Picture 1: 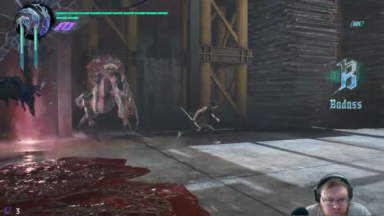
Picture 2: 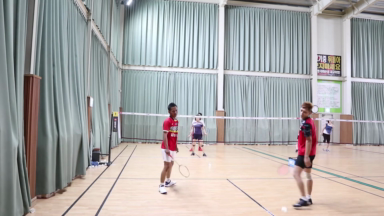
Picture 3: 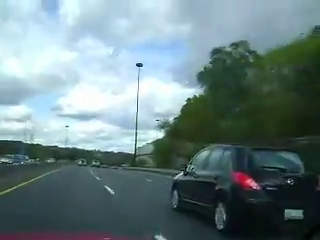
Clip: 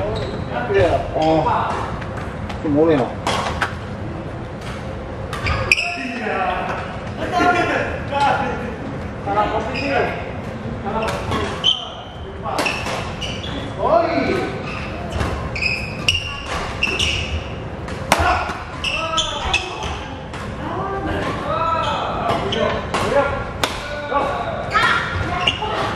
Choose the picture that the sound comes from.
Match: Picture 2